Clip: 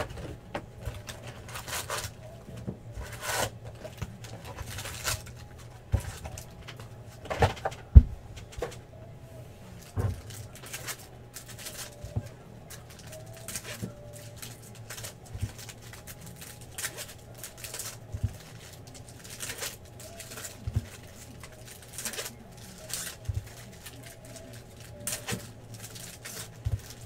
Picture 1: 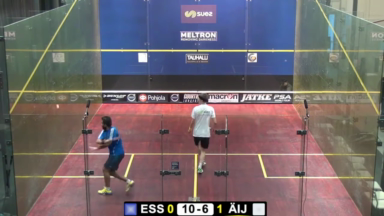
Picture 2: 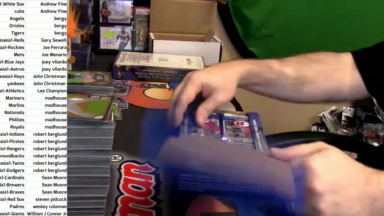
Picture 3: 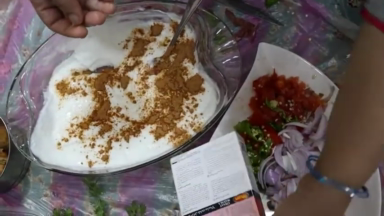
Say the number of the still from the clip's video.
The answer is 2